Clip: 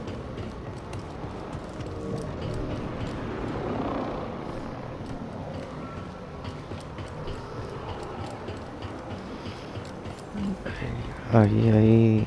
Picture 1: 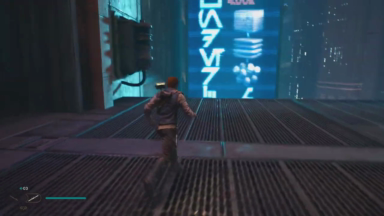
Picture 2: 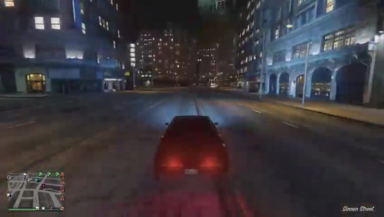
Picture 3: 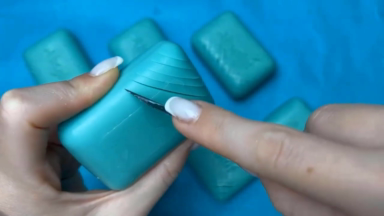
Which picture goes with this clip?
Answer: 1